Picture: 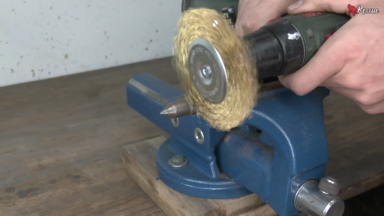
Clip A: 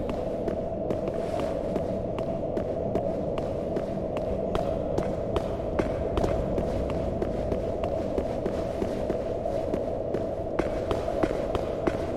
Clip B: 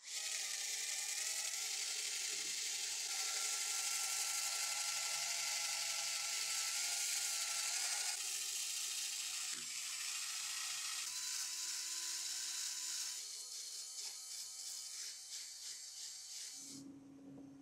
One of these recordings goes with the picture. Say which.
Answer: B